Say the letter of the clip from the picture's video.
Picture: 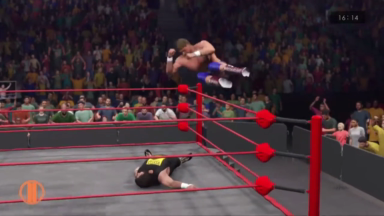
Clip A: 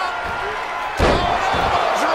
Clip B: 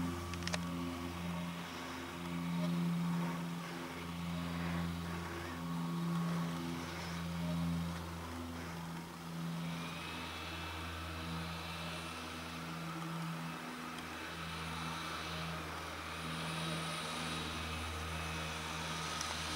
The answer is A